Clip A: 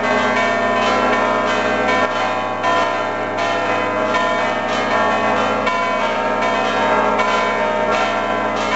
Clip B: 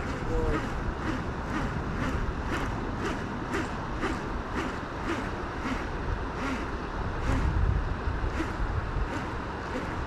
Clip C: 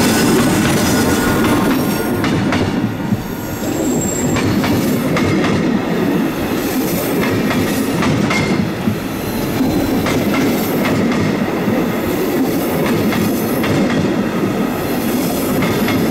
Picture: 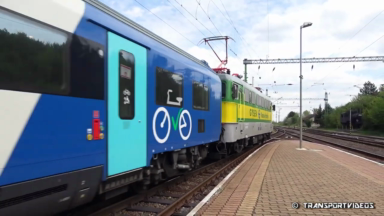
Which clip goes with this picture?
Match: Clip C